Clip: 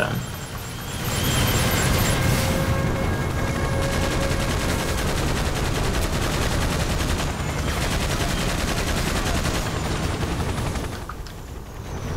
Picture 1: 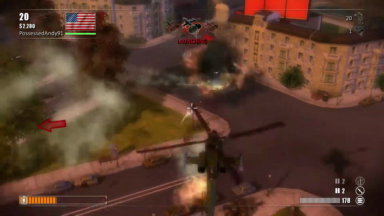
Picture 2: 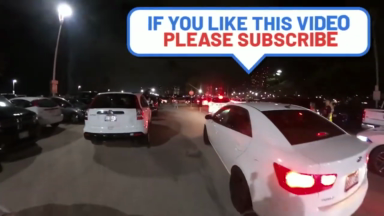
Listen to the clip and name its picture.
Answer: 1